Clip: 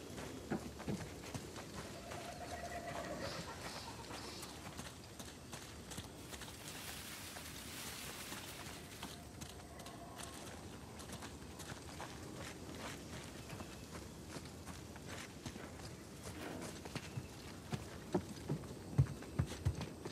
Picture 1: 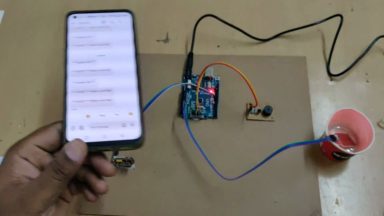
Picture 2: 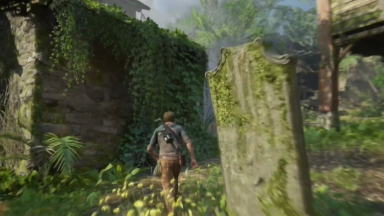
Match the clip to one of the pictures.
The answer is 2